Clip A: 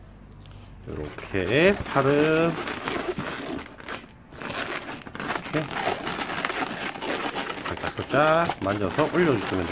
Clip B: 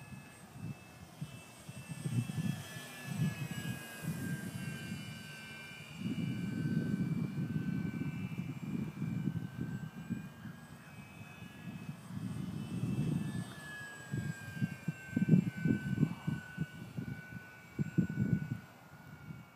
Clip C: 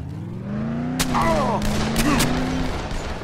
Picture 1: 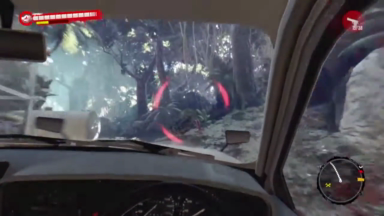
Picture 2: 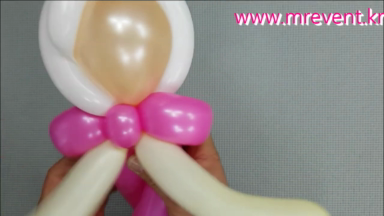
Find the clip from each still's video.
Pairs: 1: C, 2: A